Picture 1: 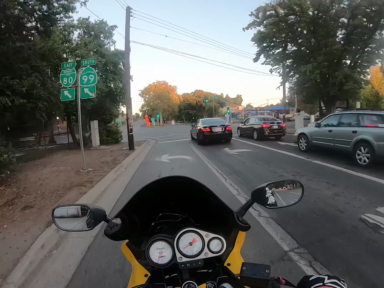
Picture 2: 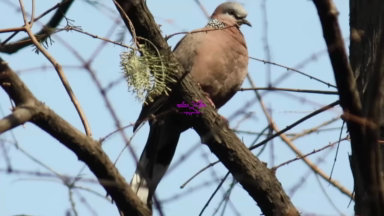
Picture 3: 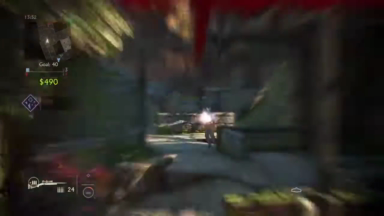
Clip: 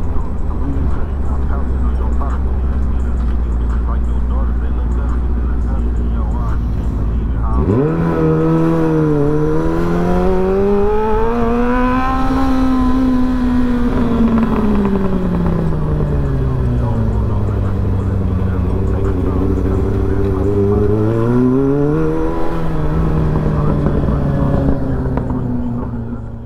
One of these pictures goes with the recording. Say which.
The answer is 1